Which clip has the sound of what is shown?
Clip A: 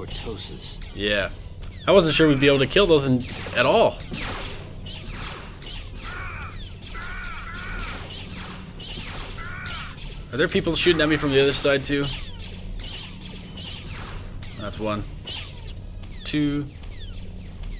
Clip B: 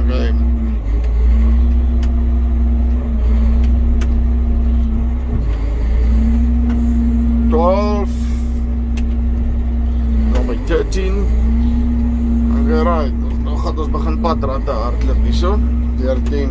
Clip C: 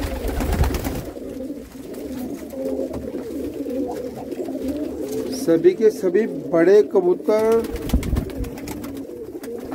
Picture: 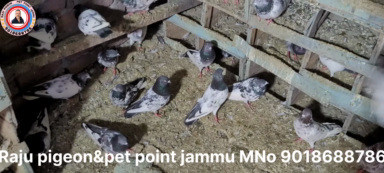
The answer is C